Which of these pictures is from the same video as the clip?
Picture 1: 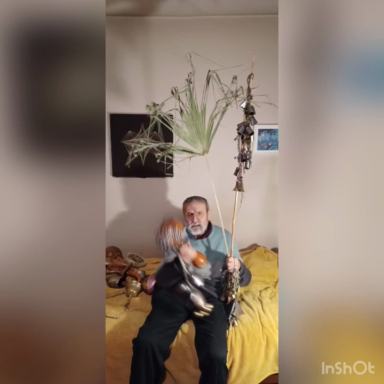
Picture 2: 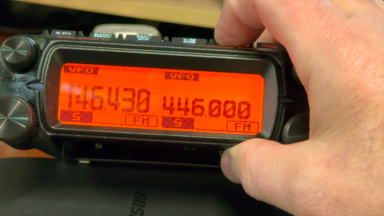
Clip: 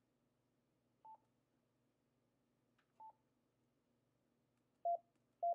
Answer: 2